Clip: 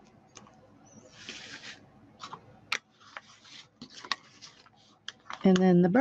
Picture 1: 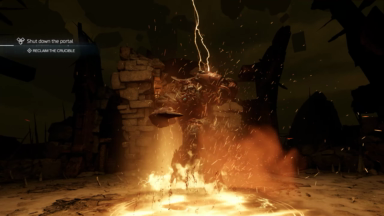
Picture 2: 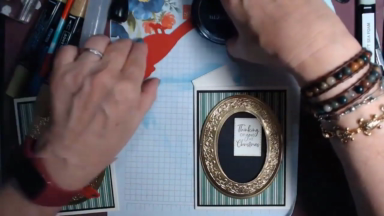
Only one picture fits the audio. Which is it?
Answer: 2